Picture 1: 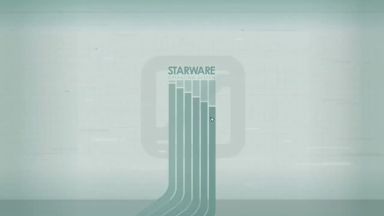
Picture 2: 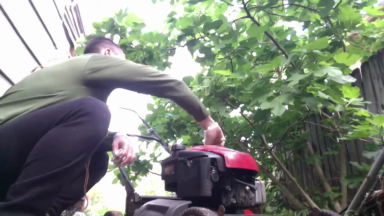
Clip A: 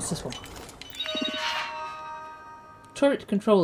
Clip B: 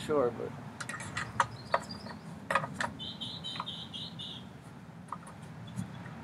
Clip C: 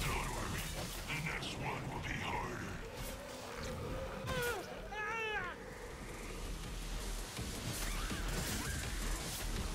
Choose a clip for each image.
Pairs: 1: A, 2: B